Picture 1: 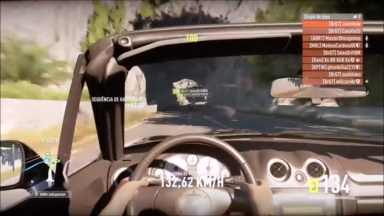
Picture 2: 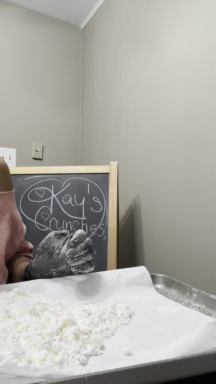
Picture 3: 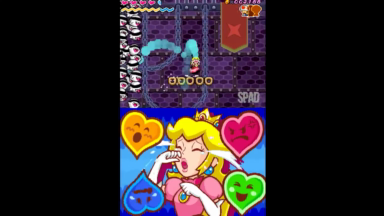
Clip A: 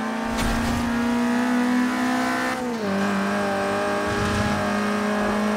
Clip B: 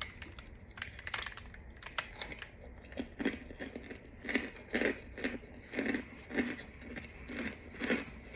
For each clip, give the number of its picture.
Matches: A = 1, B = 2